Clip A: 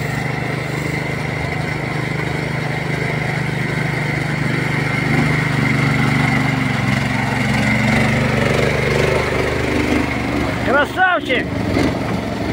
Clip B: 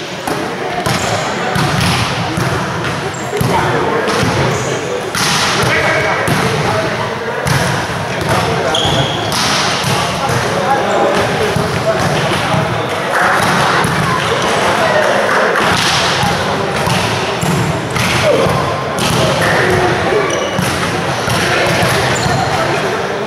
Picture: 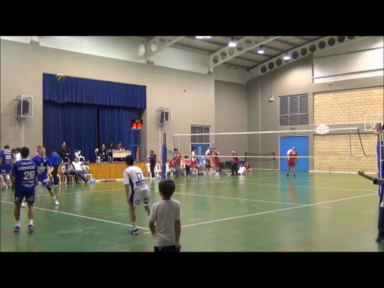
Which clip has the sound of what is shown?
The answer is B